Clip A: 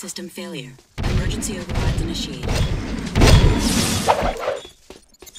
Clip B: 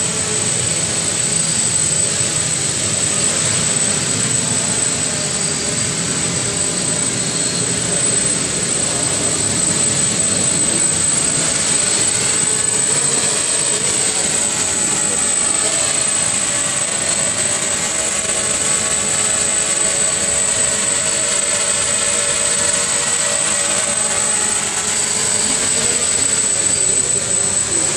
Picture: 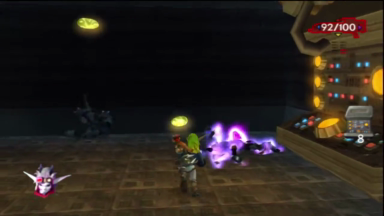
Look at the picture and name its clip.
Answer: A